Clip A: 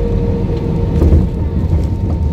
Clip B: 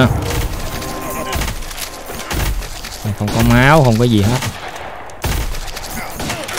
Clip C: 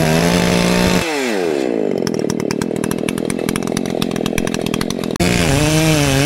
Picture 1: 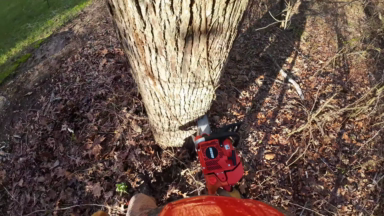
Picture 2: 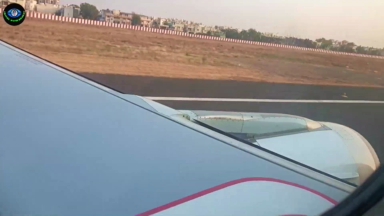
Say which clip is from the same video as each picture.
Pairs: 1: C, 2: A